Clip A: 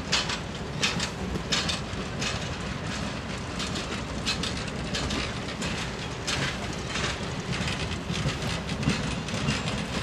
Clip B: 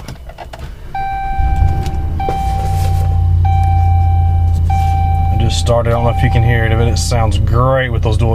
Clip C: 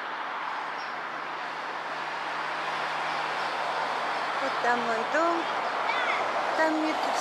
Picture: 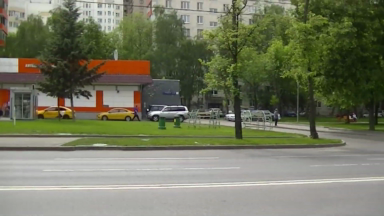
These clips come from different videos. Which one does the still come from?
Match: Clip C